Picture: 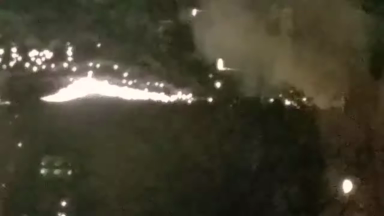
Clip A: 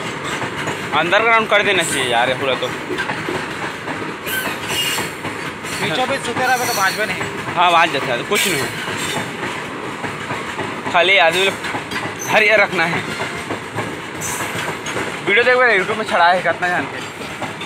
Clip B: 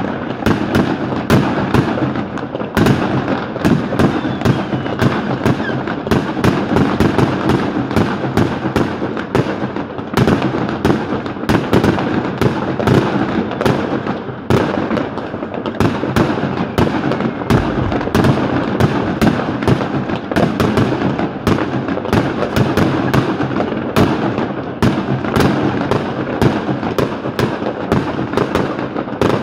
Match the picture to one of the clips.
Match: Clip B